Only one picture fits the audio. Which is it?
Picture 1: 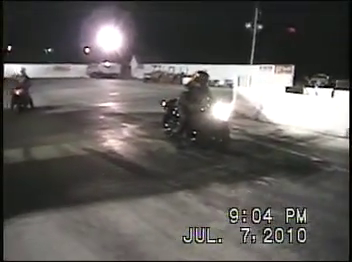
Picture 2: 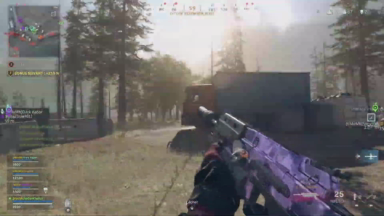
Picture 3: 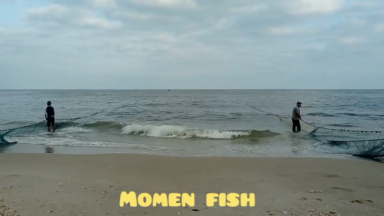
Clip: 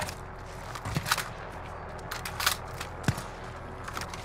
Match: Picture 2